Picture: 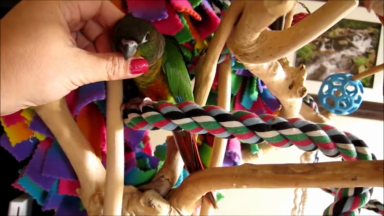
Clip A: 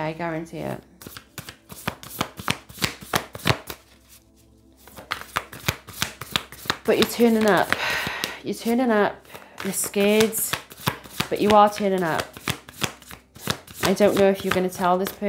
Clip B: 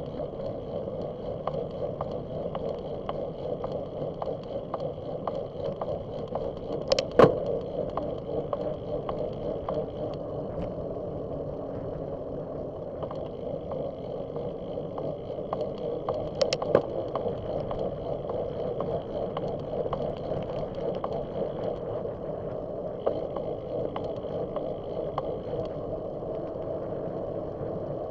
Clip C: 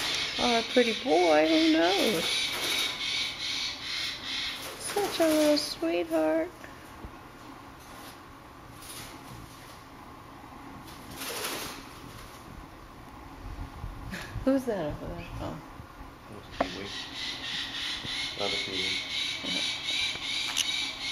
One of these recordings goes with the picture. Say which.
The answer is C